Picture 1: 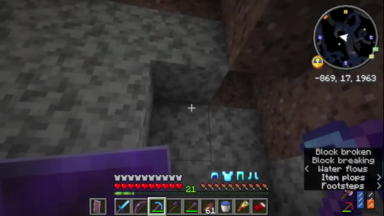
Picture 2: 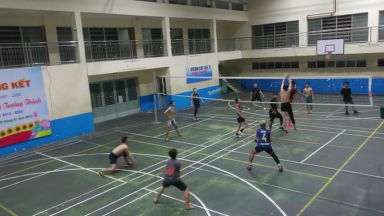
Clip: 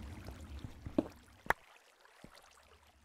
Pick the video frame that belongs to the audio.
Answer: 1